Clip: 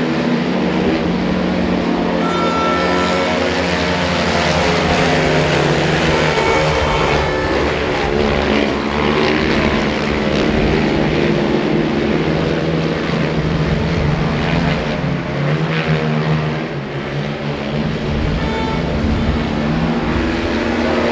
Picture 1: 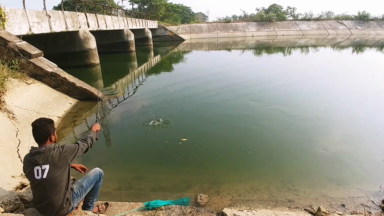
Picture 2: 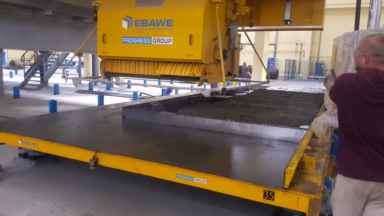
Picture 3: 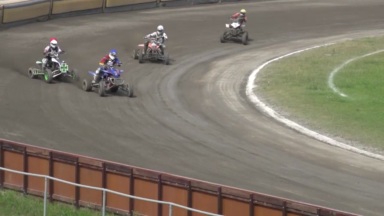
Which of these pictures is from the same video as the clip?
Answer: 3